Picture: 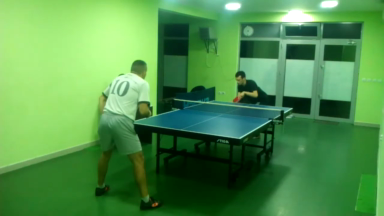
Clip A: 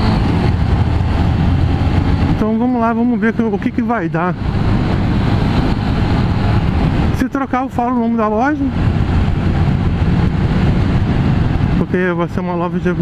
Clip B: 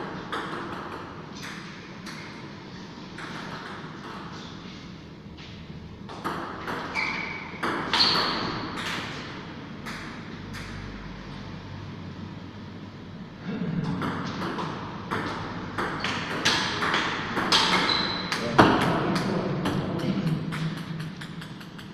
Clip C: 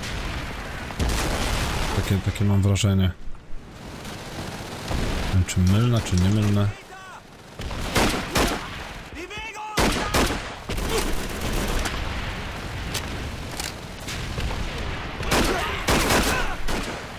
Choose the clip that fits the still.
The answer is B